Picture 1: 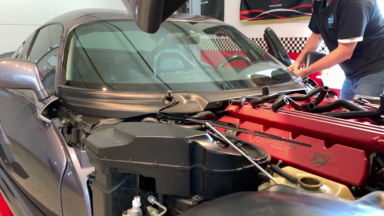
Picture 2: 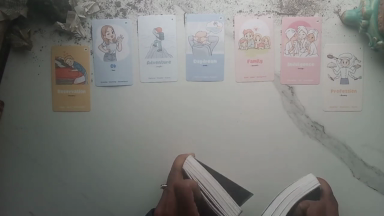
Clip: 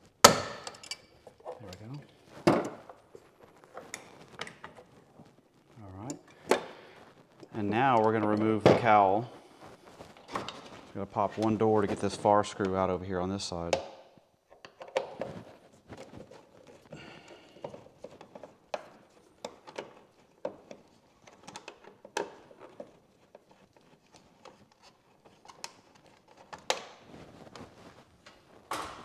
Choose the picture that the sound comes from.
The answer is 1